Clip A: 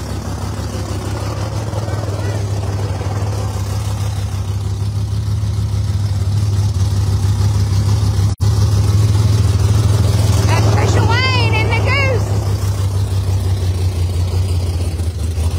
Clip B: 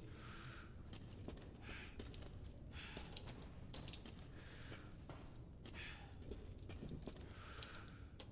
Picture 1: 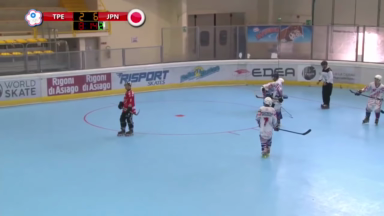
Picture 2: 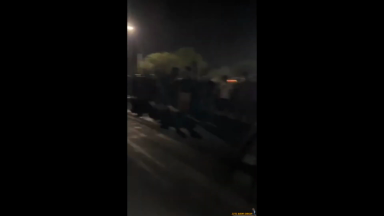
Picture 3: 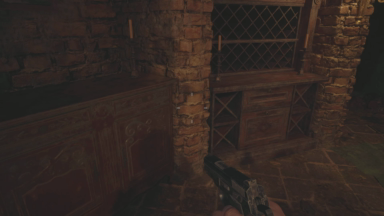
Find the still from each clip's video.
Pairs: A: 2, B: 3